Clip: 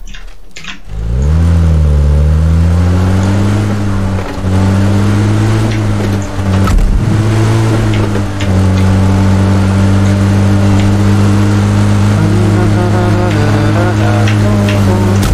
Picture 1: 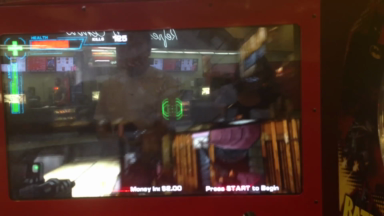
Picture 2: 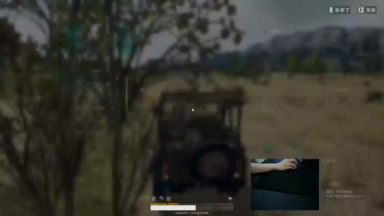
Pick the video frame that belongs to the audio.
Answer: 2